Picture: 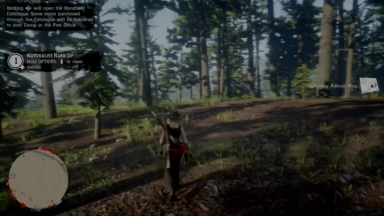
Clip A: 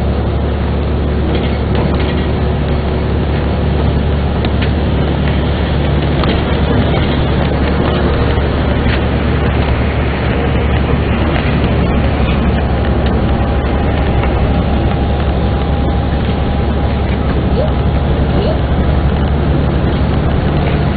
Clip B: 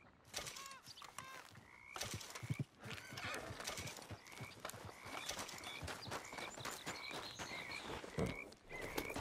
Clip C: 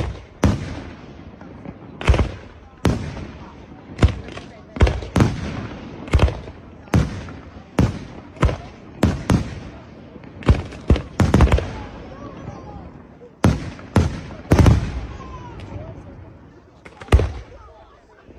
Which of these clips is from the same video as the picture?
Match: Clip B